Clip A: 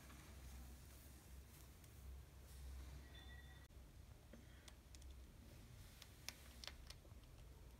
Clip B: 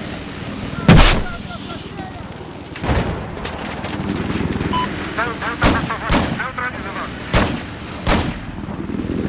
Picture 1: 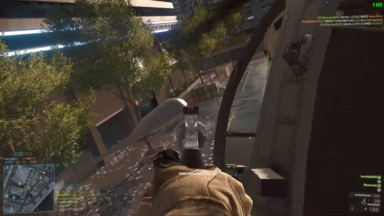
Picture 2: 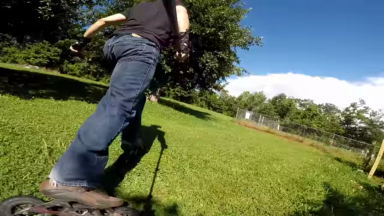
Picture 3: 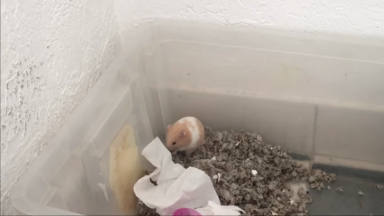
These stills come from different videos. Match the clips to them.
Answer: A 3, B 1